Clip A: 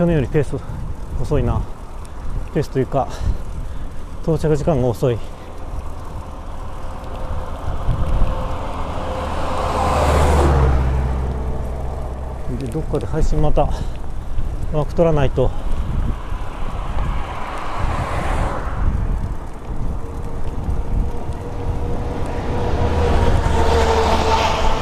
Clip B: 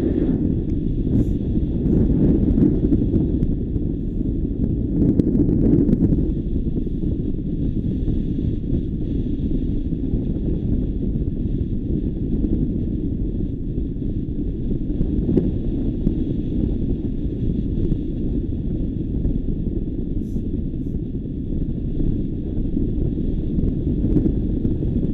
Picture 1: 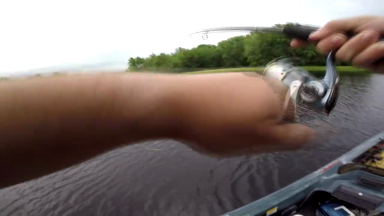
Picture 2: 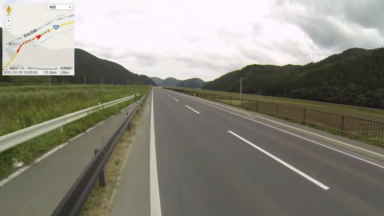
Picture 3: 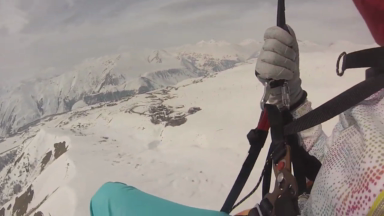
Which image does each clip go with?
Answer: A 2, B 3